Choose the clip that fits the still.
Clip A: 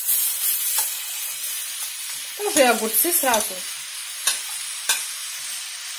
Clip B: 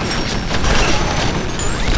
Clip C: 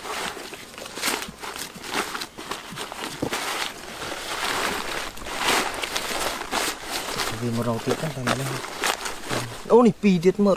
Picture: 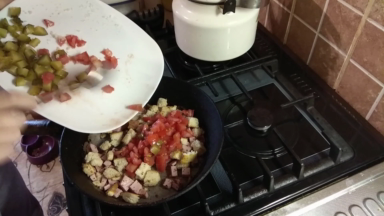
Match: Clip A